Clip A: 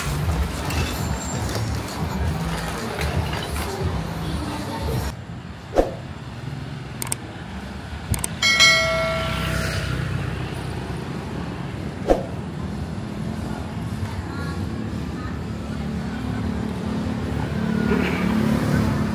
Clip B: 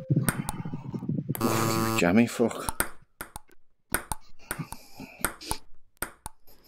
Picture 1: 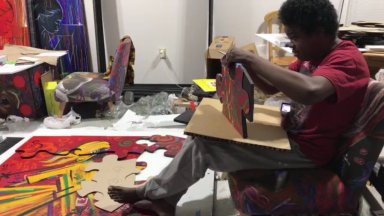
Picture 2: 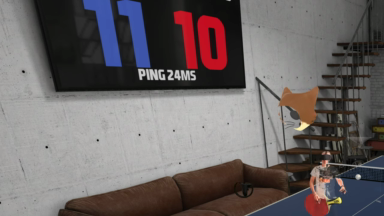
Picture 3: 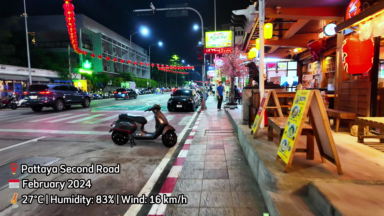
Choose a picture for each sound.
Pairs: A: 3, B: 2